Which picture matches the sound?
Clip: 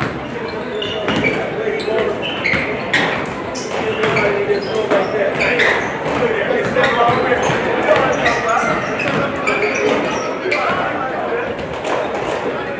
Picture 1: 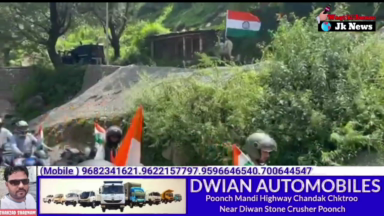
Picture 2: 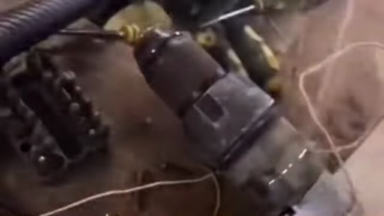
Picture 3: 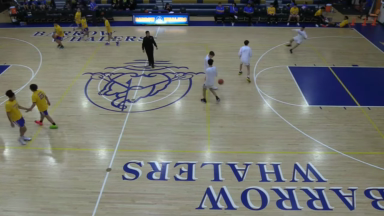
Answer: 3